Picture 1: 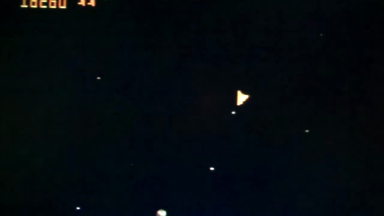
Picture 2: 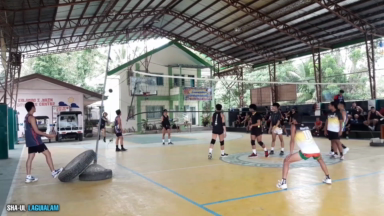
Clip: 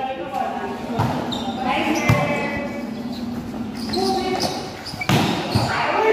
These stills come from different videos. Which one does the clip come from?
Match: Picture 2